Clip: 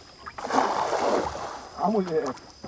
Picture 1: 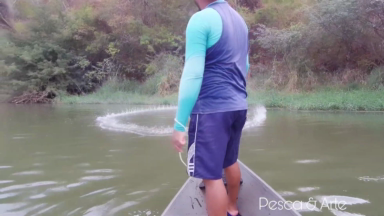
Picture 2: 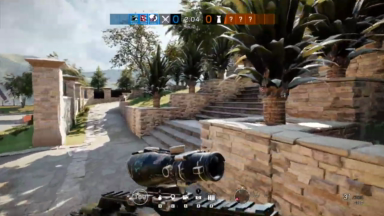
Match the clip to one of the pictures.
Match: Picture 1